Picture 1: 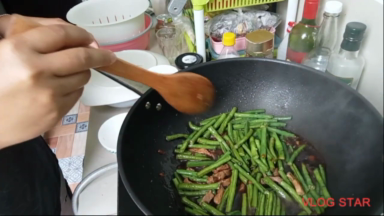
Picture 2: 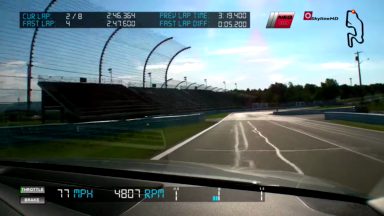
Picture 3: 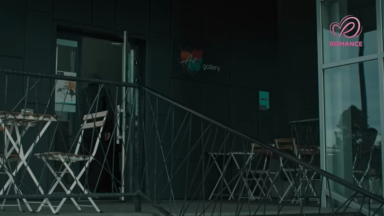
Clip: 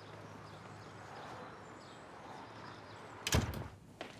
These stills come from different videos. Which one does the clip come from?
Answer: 3